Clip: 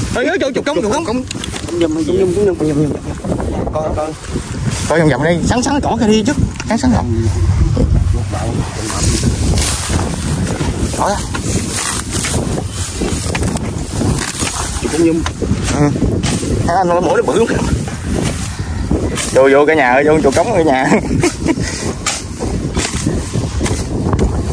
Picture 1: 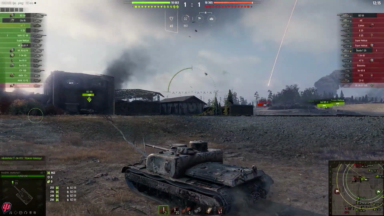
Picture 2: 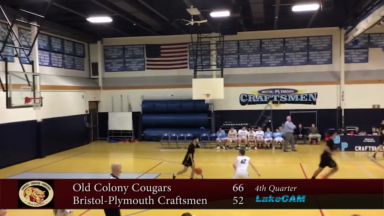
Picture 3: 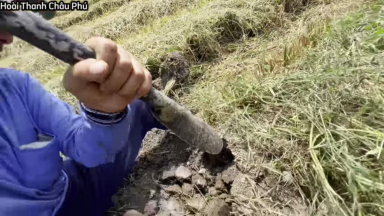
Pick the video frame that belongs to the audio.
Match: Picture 3